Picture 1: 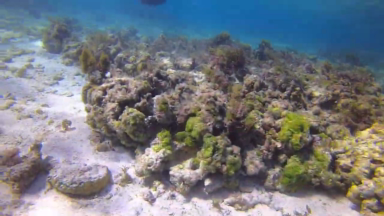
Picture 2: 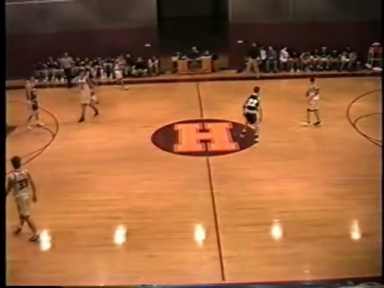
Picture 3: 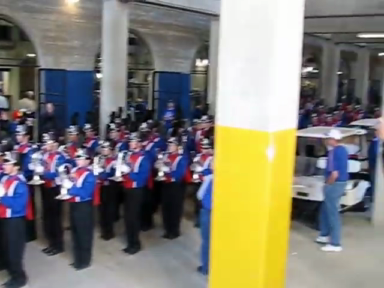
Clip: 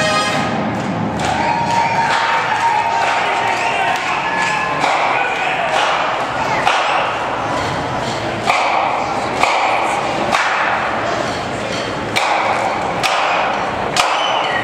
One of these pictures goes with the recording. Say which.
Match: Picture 3